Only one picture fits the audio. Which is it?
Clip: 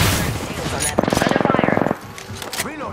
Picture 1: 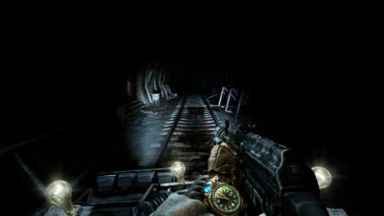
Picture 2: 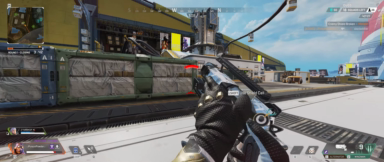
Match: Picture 2